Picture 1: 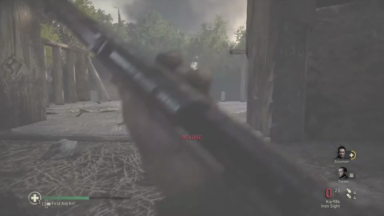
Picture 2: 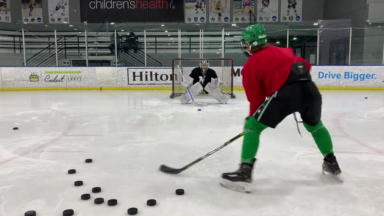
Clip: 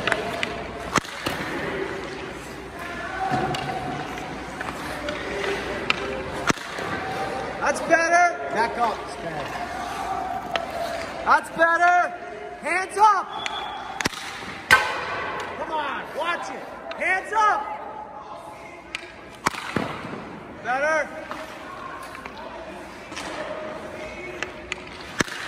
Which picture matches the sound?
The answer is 2